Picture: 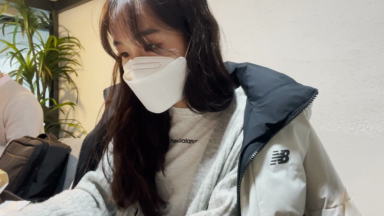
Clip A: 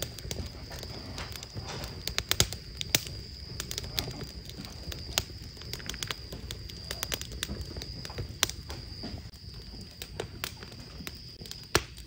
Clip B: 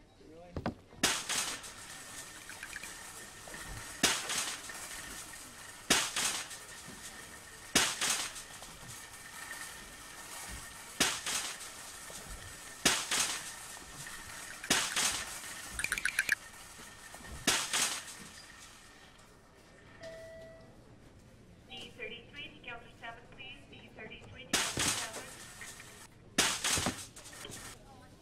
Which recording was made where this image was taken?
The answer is A